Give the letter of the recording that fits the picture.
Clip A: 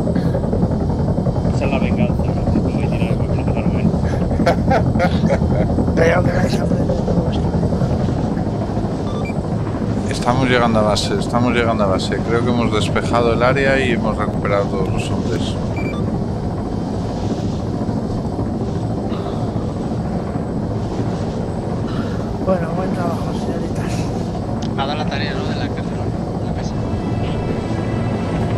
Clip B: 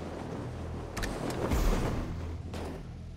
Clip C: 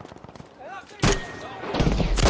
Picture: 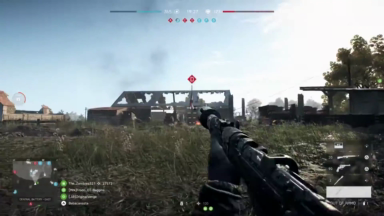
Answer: C